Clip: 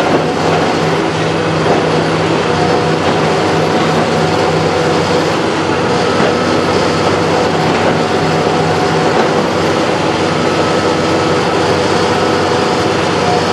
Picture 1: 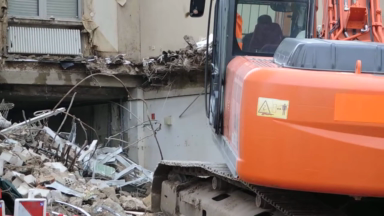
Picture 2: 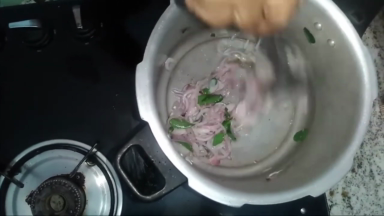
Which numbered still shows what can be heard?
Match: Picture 1